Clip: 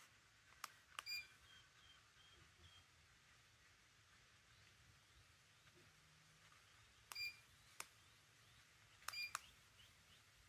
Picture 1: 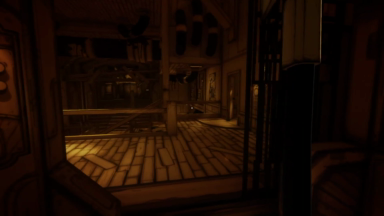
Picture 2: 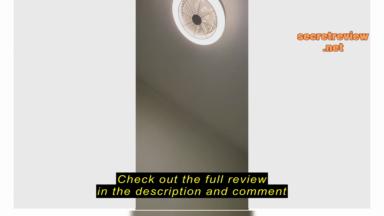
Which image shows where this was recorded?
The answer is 2